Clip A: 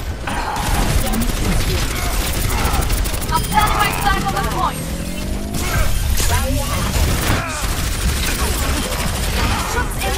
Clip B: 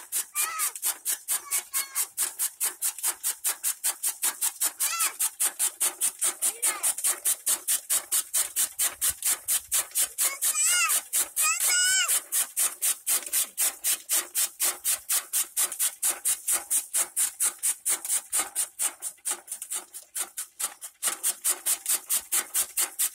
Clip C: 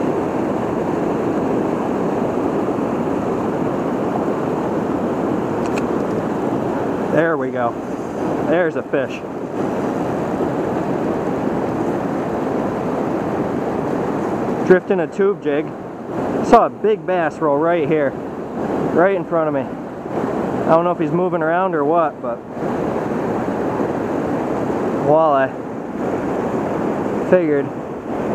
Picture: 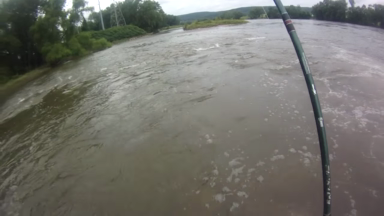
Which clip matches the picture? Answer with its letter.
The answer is C